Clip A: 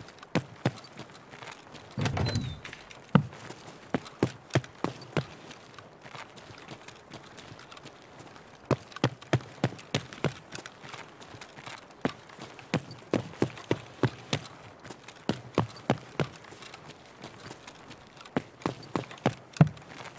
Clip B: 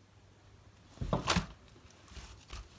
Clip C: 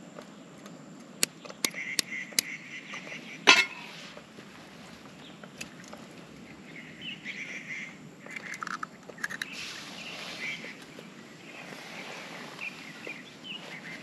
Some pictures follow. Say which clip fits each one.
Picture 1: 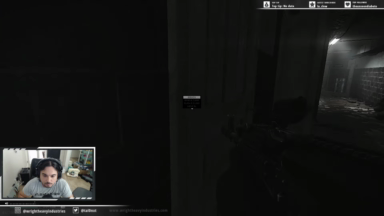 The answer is A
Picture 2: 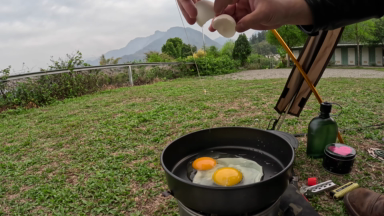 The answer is C